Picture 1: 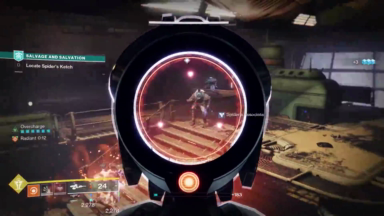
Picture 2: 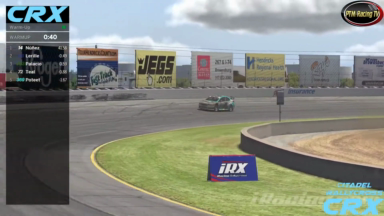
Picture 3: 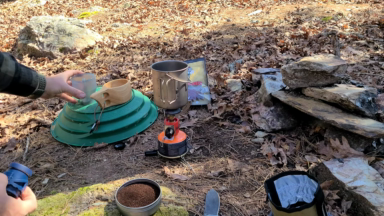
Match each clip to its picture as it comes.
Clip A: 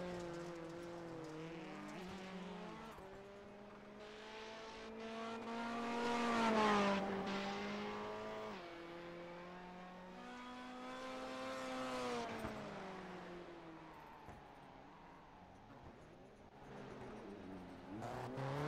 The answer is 2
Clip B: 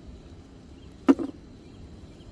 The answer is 3